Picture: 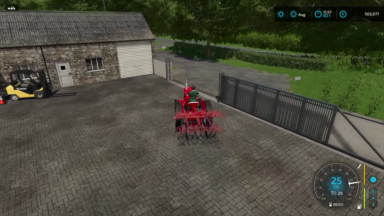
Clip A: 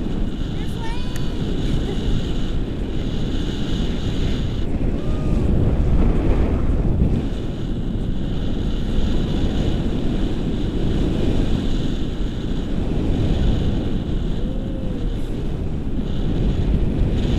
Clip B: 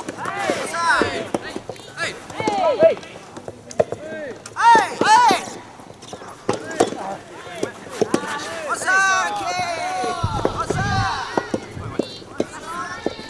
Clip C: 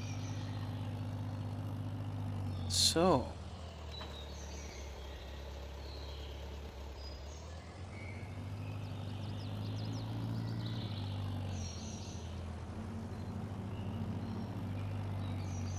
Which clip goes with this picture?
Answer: C